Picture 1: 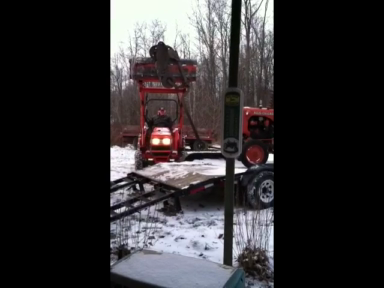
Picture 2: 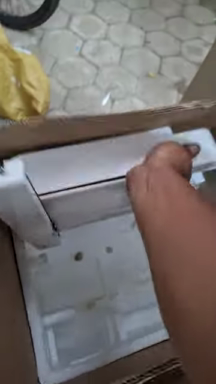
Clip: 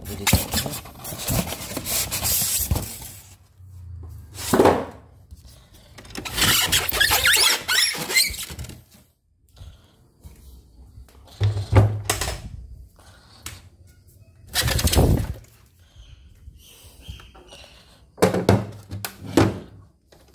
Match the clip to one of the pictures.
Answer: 2